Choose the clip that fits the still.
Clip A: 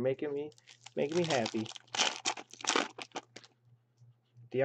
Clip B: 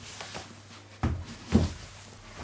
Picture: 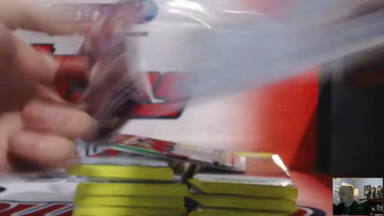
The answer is A